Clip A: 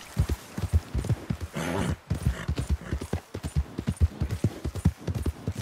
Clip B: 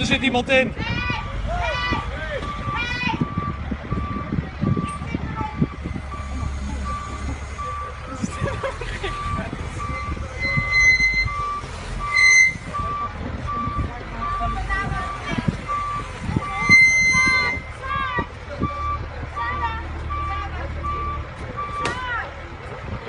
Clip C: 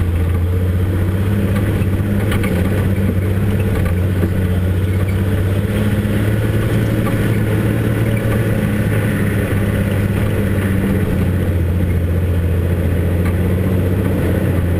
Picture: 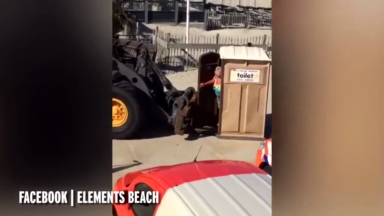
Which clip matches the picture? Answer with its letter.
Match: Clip B